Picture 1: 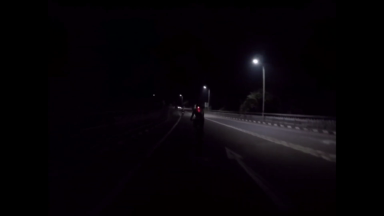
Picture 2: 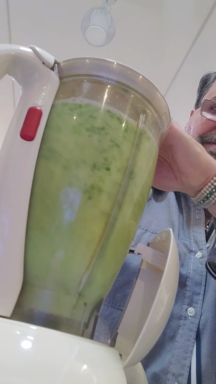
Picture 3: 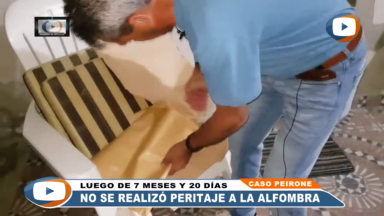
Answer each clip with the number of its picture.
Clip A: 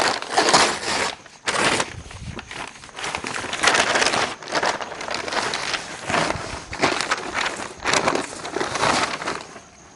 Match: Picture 3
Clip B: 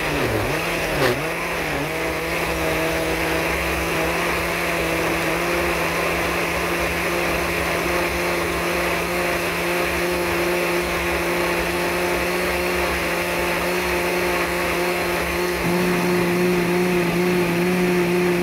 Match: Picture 2